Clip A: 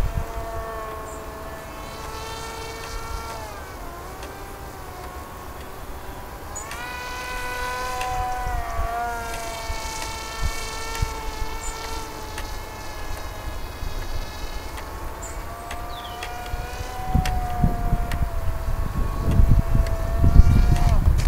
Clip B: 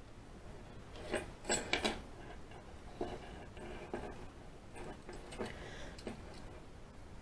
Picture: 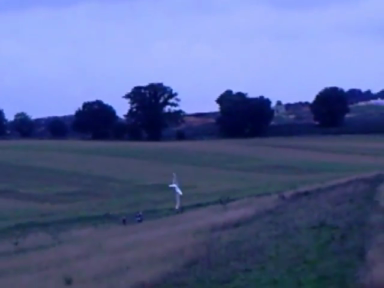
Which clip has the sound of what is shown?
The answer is A